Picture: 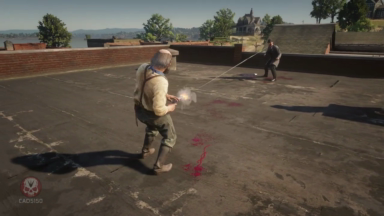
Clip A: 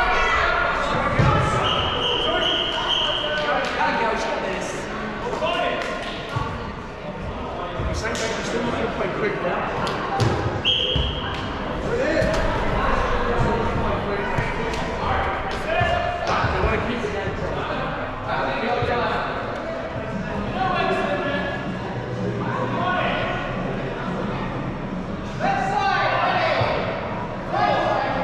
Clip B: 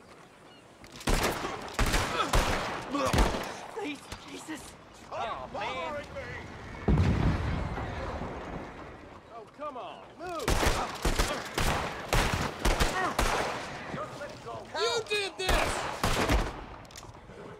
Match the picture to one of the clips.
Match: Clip B